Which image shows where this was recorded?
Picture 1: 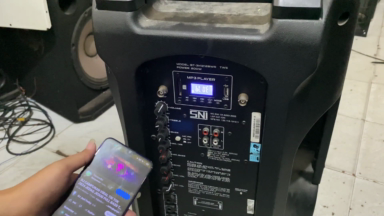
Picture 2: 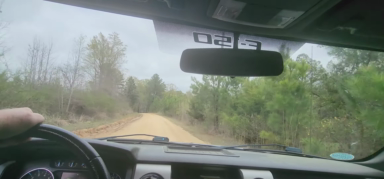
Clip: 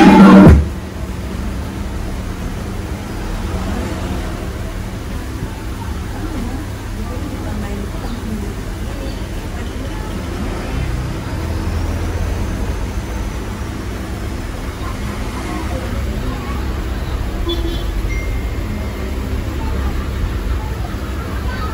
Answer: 1